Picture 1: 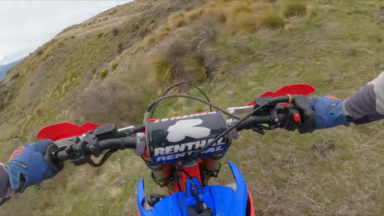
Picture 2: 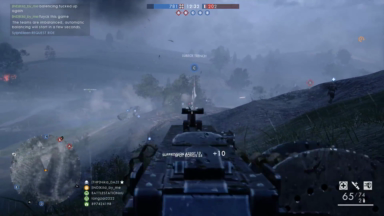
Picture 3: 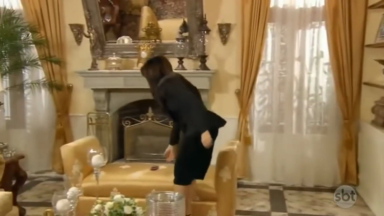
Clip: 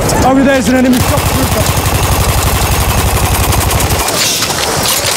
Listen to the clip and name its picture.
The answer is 2